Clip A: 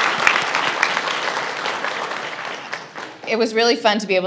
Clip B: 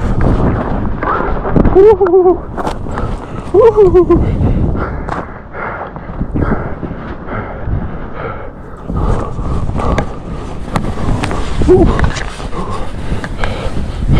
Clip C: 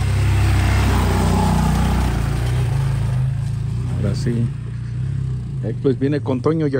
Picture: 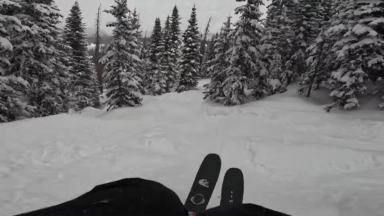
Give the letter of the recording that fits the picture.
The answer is B